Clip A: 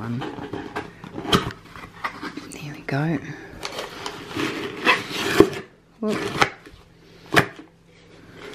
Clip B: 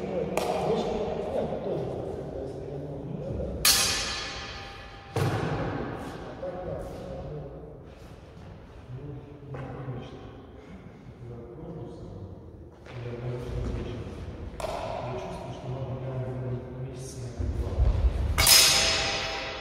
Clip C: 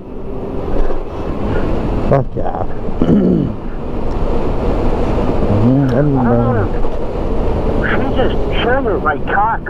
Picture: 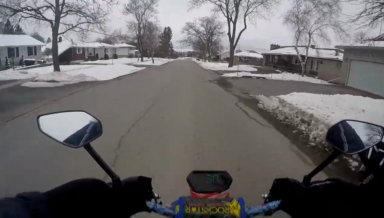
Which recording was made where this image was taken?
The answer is C